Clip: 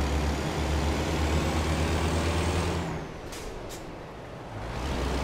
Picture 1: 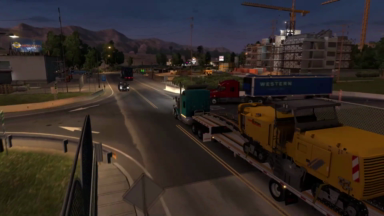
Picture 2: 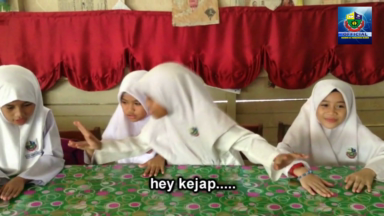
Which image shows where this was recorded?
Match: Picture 1